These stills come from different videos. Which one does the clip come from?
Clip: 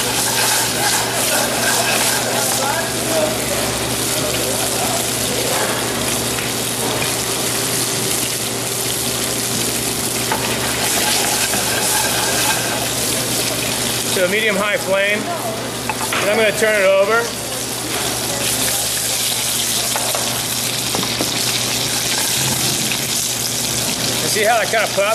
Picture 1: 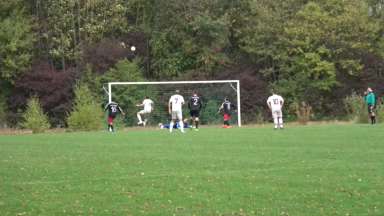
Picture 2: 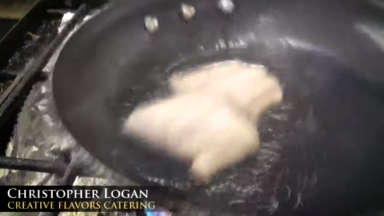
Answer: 2